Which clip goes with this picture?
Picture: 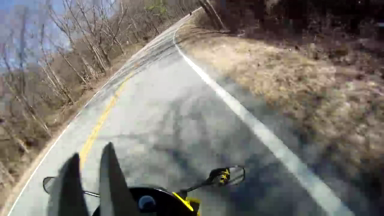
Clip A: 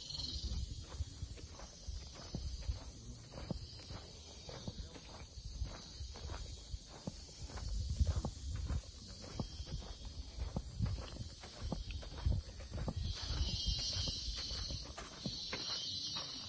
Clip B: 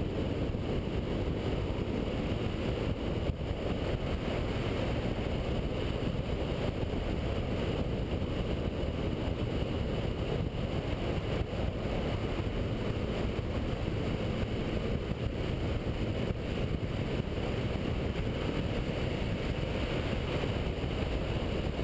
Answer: B